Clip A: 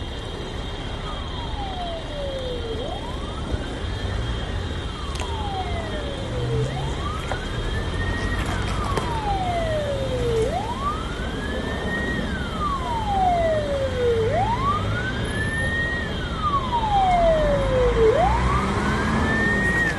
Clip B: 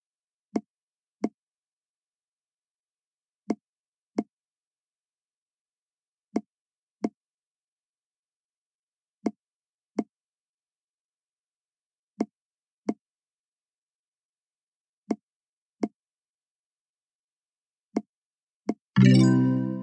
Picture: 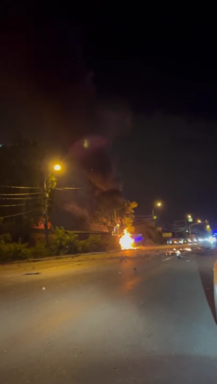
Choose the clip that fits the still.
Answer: A